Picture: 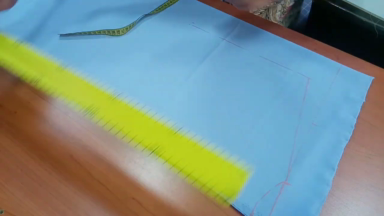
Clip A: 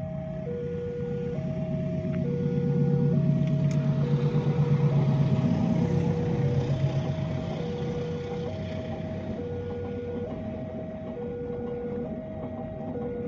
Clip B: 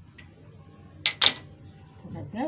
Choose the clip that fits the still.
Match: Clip B